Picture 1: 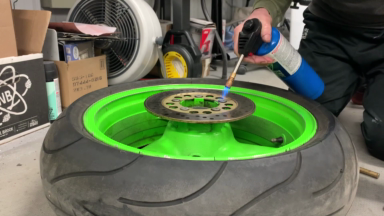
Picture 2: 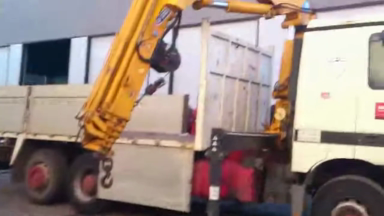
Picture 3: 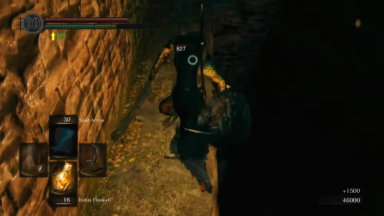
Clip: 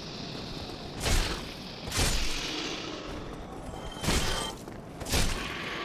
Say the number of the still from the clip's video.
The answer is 3